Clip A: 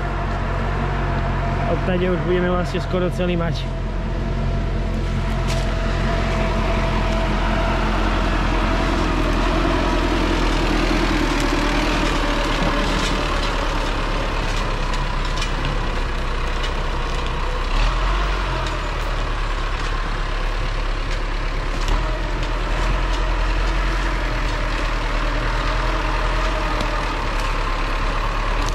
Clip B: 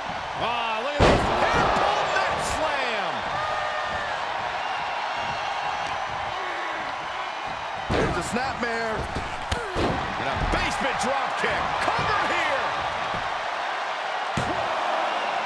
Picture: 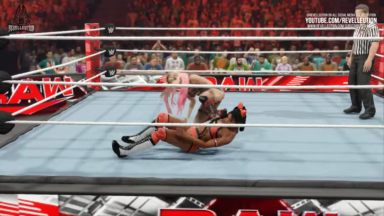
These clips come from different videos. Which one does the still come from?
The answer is B